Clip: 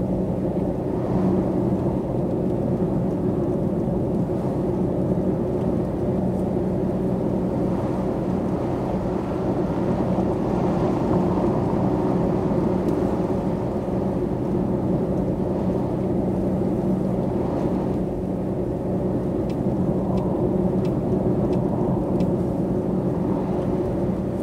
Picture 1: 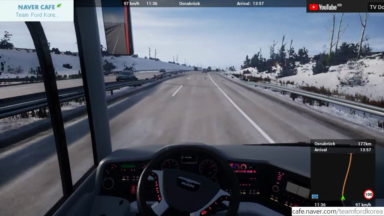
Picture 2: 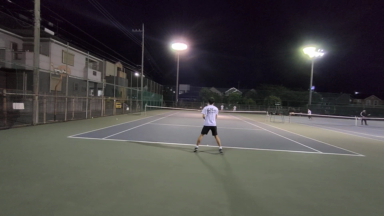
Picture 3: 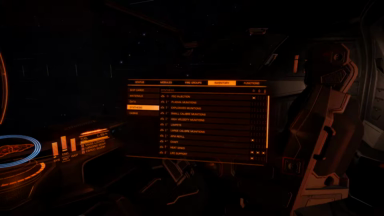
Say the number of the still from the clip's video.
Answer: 1